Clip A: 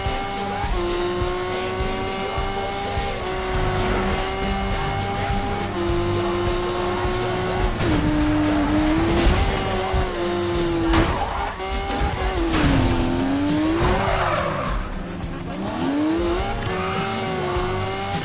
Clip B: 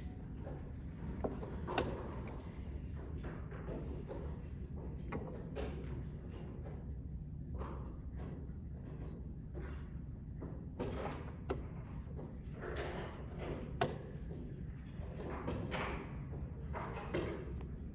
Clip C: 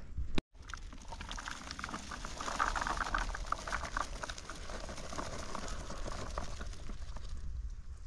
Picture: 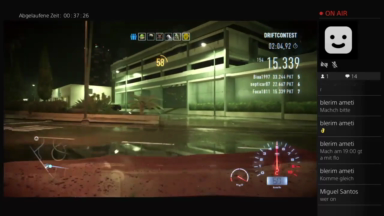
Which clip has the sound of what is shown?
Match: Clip A